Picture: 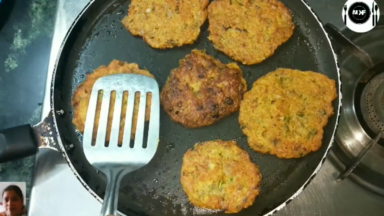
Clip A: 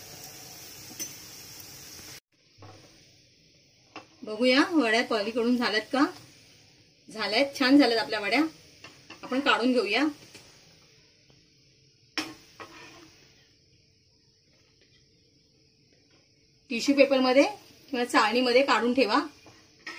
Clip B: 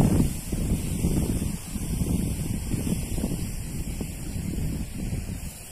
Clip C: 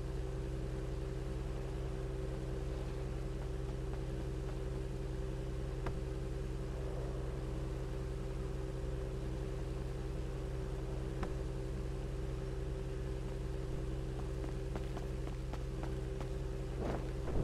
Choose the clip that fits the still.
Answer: A